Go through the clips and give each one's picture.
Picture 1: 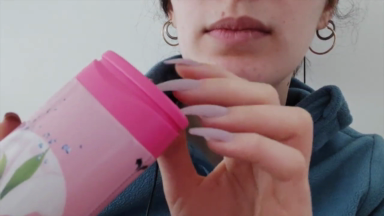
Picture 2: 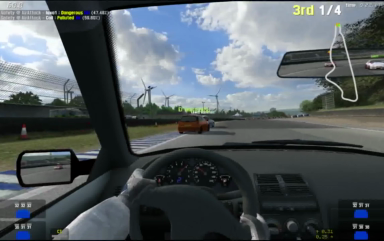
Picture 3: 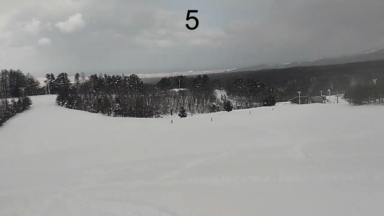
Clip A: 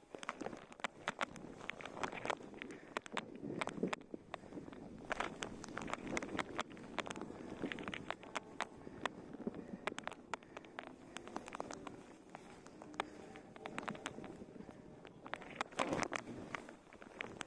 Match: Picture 3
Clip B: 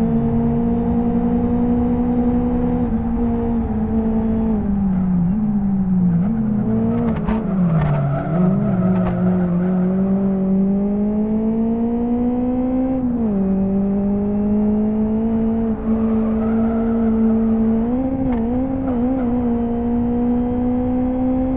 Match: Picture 2